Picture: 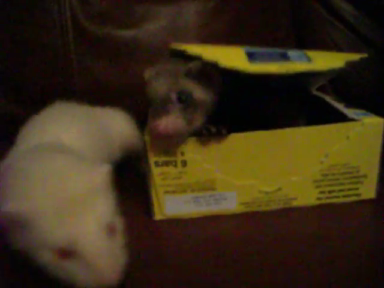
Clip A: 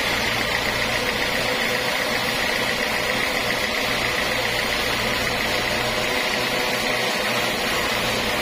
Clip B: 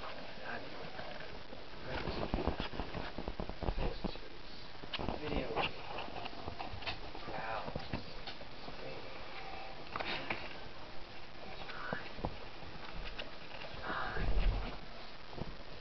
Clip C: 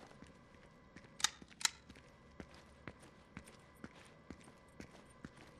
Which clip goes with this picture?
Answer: B